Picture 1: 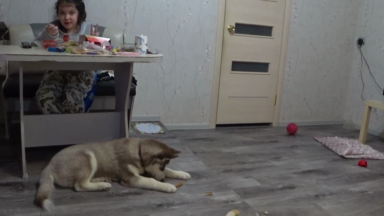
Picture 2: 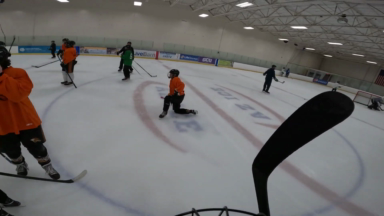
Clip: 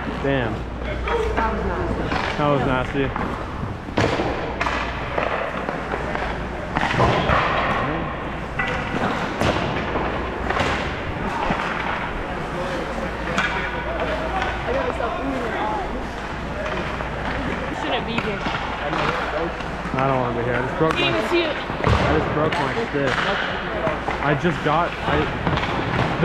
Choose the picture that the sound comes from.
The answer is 2